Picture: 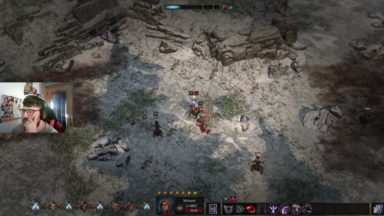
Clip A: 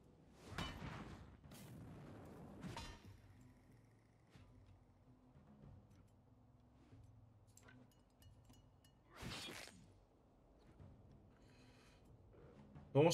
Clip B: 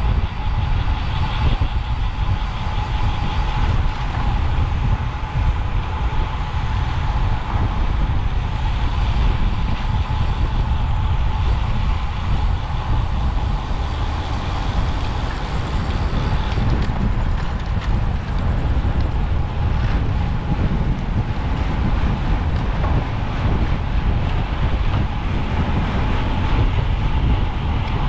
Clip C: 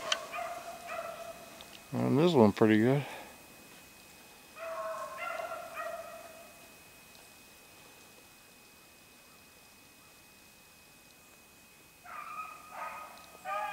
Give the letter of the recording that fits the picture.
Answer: A